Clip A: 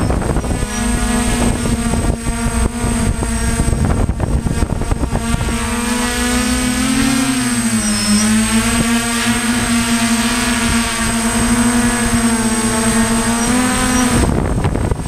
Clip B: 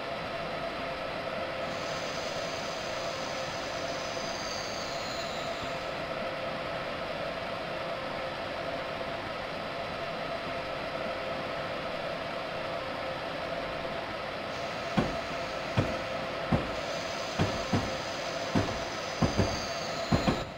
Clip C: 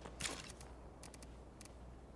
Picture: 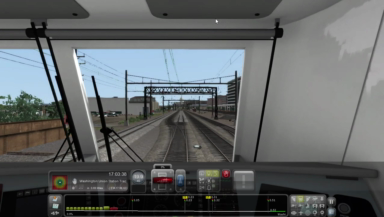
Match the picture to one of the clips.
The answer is B